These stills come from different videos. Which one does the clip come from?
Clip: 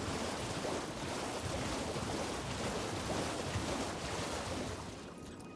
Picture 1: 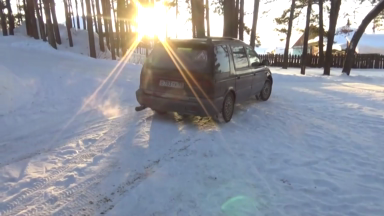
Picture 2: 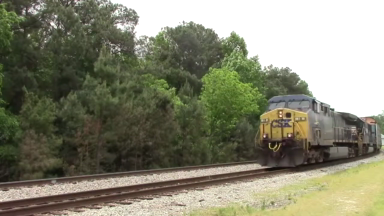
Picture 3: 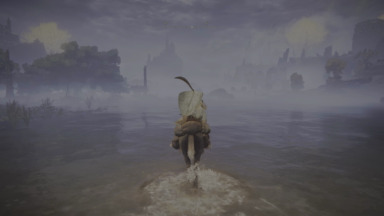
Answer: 3